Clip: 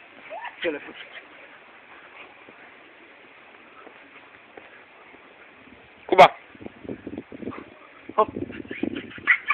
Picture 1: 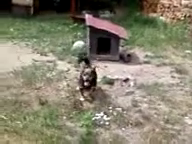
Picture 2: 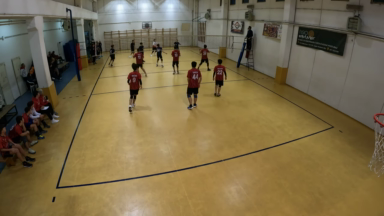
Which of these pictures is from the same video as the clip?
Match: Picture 1